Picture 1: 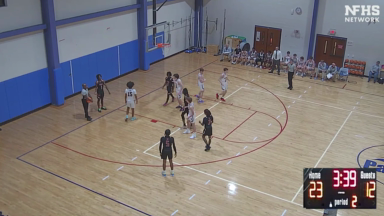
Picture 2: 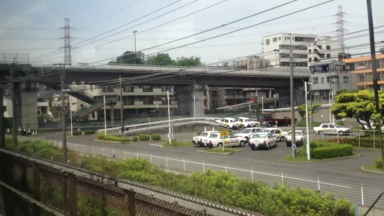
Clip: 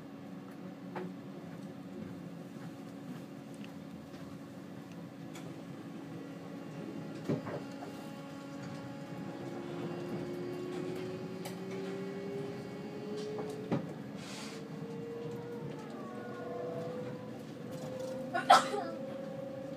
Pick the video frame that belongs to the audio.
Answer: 2